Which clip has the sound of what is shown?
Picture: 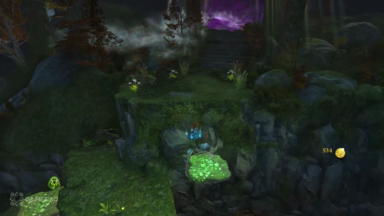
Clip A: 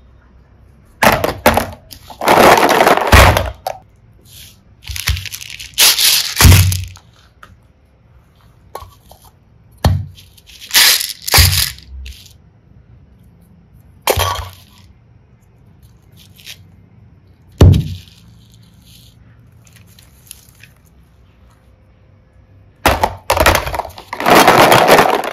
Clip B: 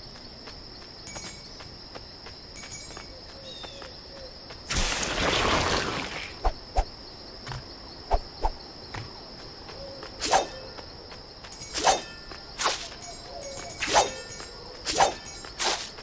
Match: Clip B